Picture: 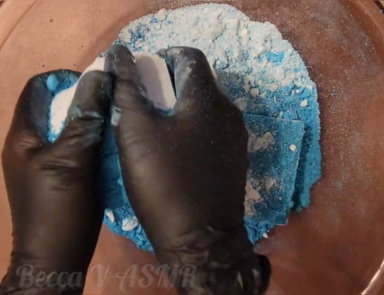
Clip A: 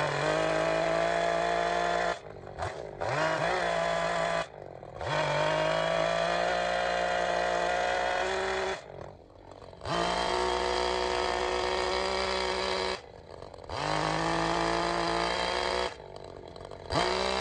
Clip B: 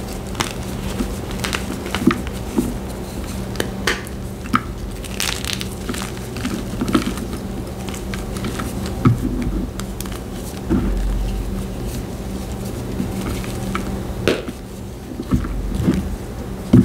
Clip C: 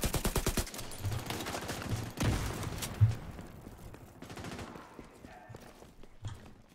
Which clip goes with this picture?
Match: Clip B